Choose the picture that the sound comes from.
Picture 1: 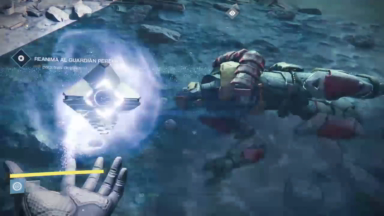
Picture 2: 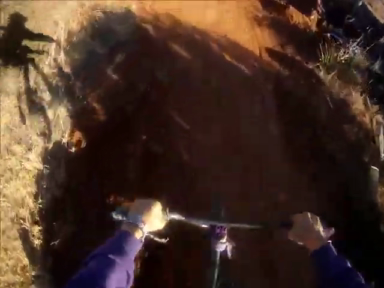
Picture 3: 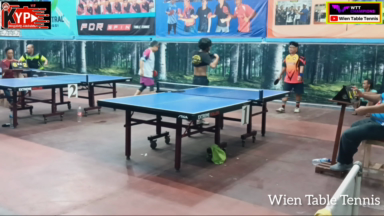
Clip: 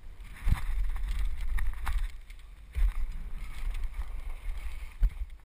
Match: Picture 2